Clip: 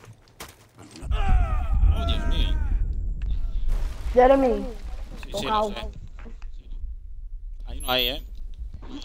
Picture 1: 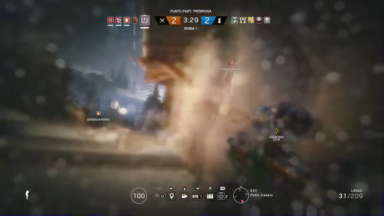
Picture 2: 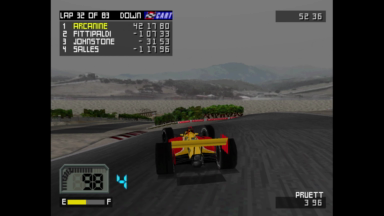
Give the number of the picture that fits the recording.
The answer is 1